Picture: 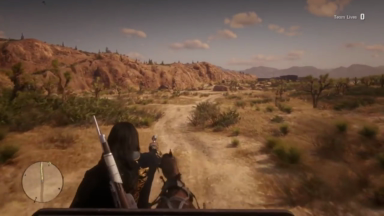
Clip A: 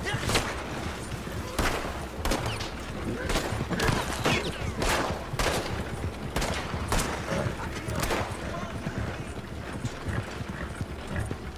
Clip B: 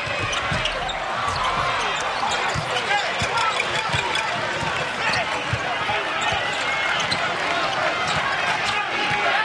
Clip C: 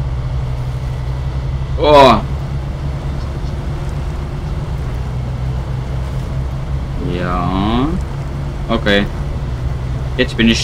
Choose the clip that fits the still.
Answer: A